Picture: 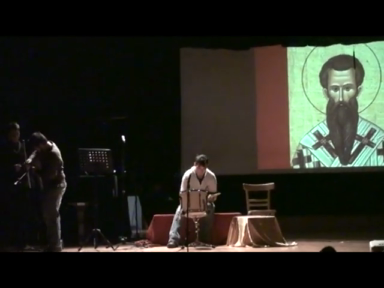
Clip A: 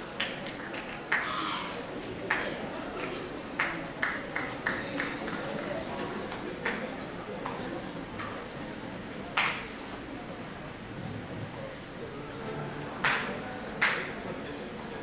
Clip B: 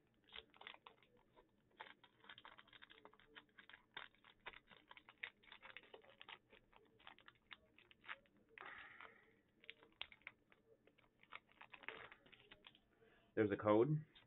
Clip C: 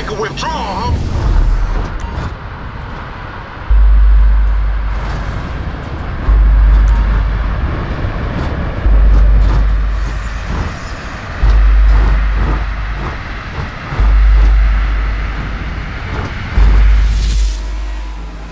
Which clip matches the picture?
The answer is A